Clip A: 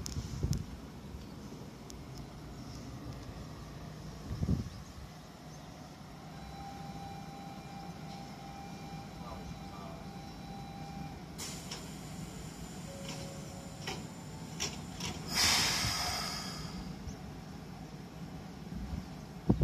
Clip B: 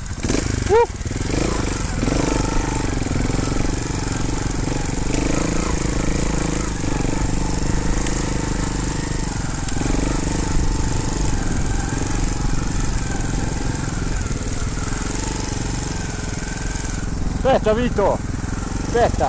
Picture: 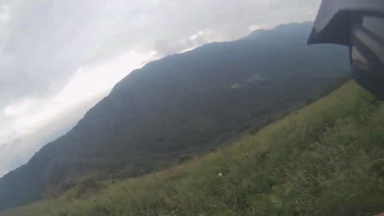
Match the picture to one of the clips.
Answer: B